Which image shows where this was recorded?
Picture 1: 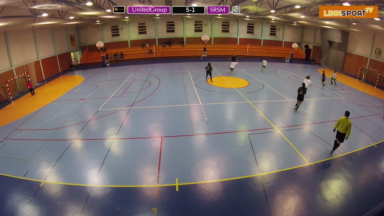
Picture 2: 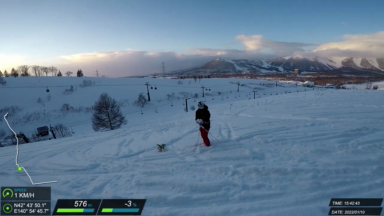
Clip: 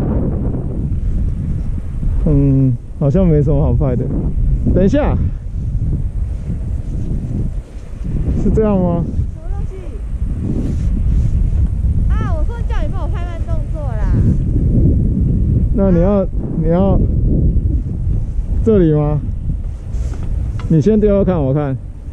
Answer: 2